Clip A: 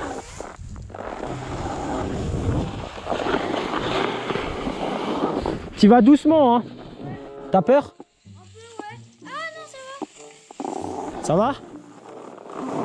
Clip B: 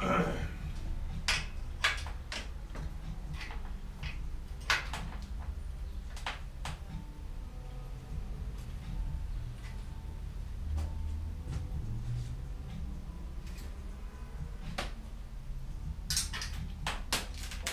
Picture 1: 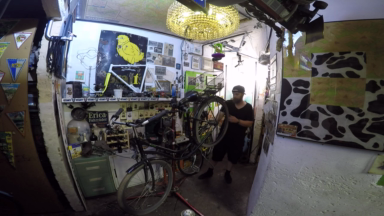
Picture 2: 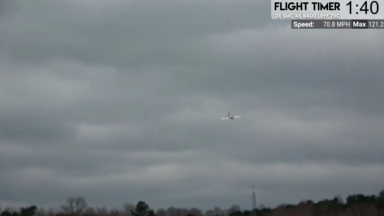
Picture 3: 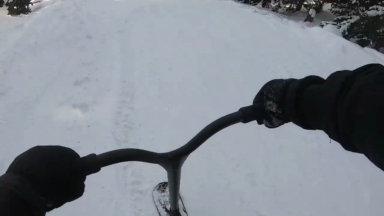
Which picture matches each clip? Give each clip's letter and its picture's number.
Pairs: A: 3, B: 1